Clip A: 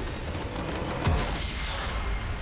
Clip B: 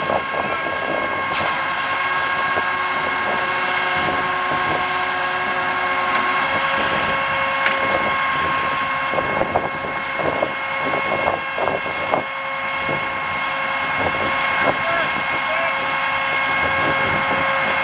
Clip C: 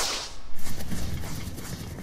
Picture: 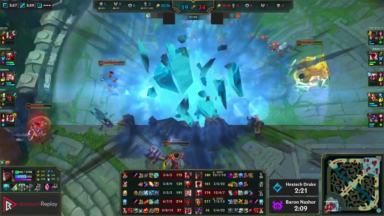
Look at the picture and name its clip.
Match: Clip A